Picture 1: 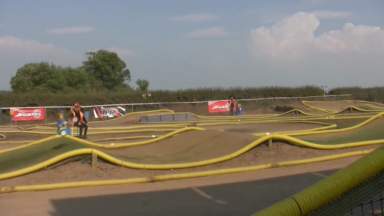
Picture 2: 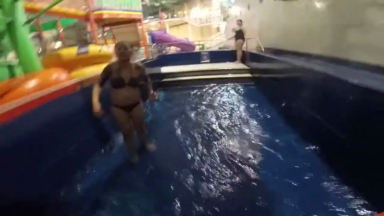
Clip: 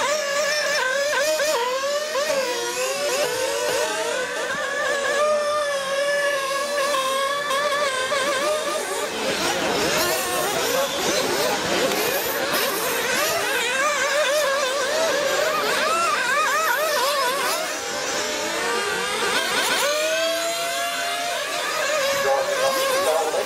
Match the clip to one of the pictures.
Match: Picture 1